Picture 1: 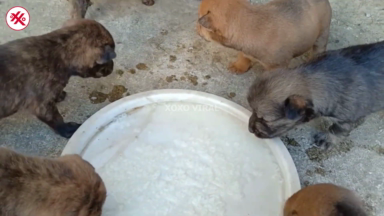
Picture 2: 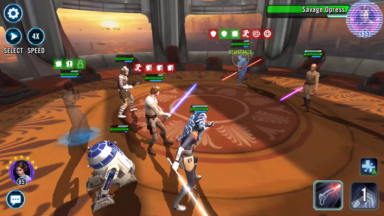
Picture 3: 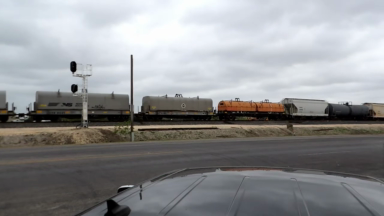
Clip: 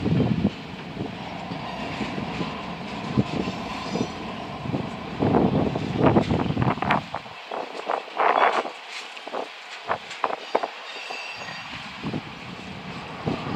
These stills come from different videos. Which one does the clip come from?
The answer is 3